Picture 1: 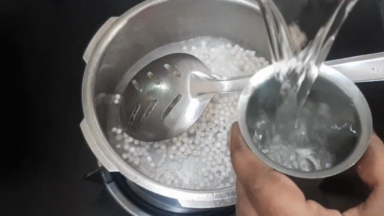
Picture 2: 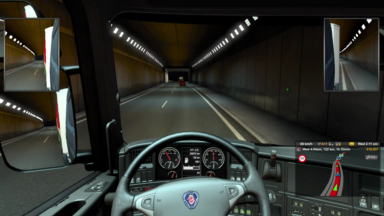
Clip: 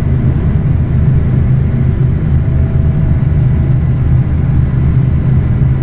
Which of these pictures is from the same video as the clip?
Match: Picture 2